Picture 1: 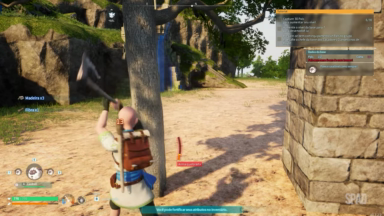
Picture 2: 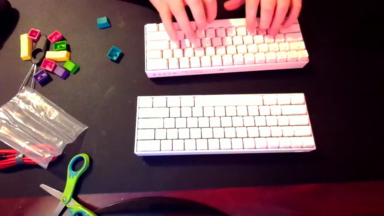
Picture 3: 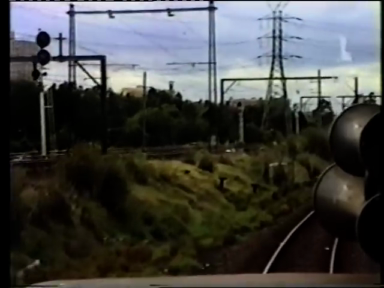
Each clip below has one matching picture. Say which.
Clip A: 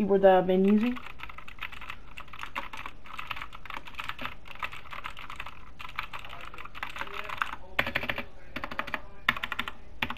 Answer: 2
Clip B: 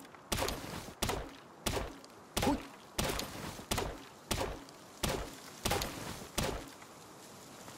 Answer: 1